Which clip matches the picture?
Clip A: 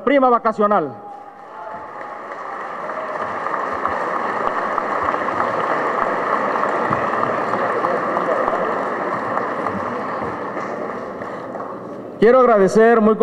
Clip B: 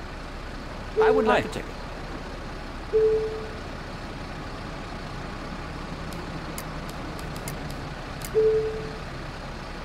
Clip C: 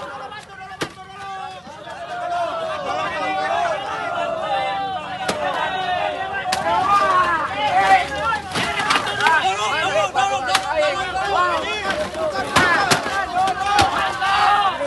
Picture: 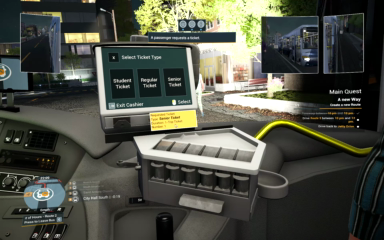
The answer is B